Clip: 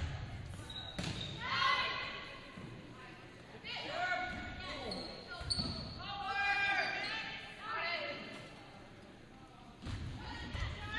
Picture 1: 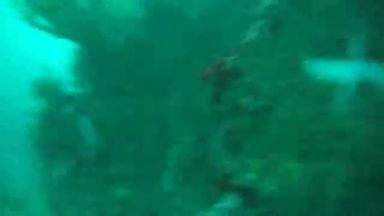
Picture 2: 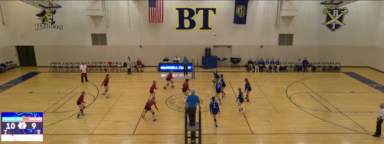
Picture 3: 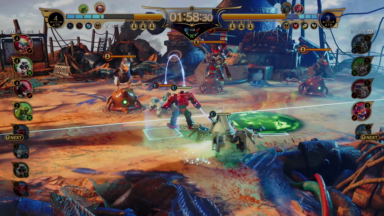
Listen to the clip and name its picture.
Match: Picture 2